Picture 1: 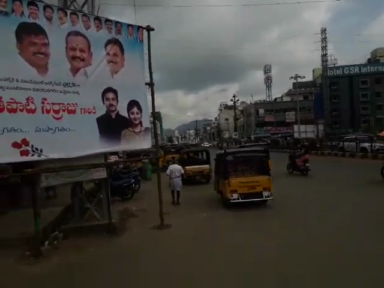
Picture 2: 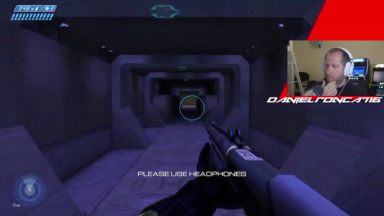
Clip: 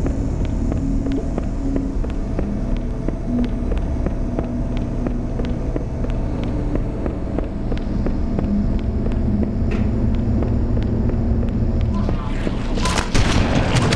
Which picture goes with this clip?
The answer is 2